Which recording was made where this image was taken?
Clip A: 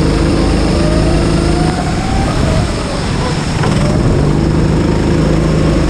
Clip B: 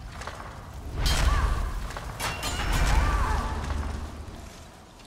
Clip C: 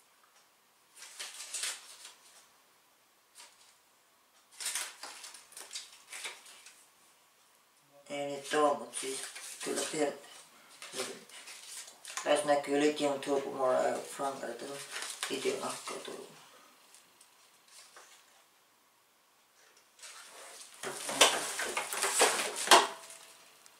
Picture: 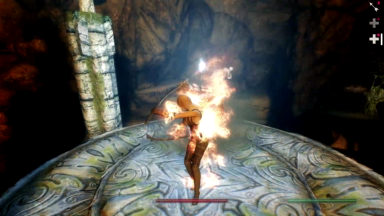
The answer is B